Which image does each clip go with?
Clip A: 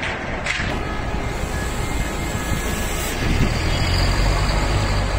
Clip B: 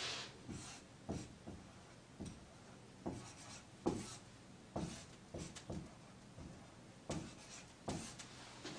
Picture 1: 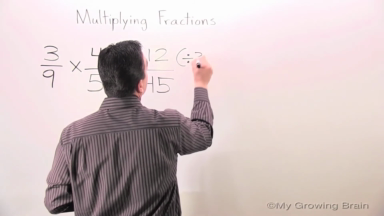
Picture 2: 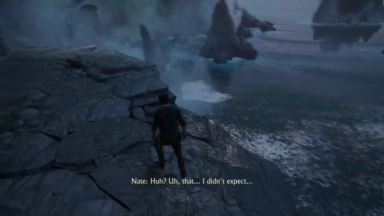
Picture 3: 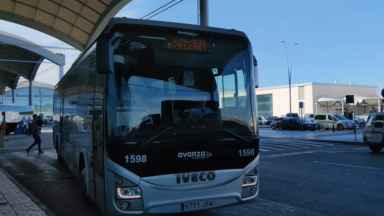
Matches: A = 3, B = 1